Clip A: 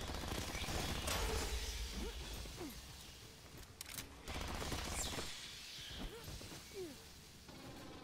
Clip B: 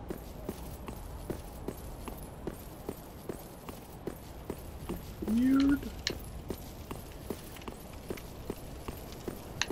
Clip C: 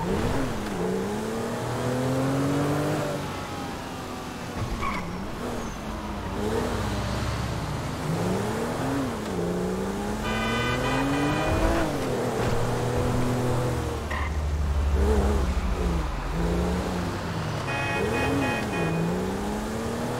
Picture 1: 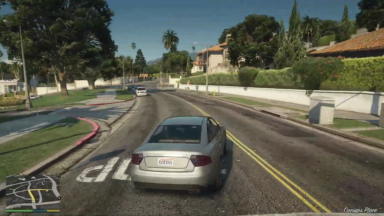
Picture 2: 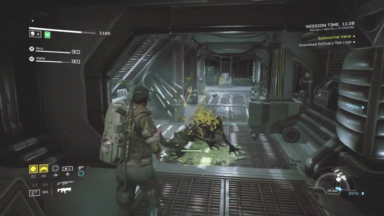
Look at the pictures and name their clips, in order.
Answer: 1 C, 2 A